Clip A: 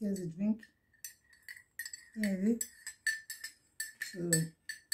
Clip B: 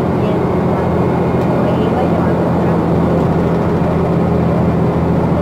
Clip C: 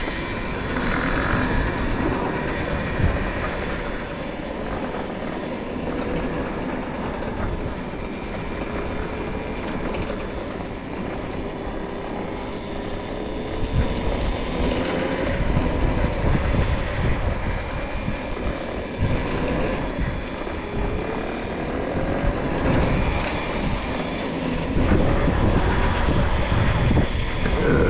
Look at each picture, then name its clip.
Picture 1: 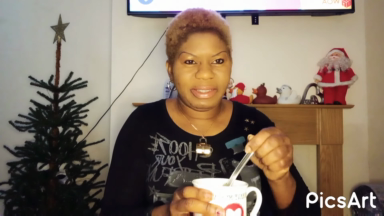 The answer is A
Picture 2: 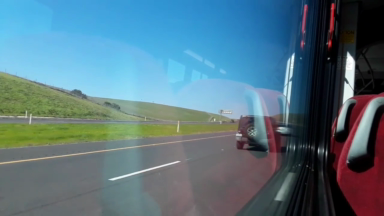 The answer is B